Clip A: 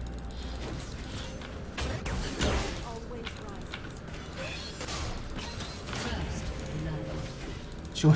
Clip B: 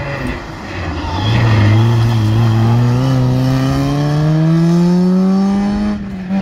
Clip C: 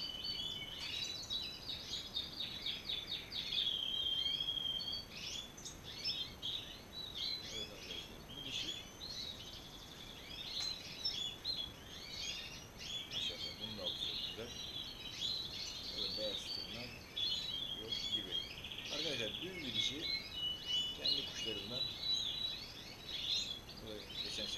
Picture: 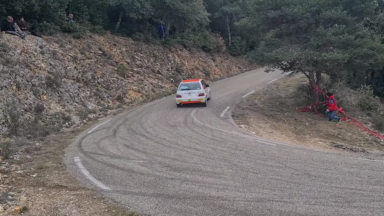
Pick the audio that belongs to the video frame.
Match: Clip B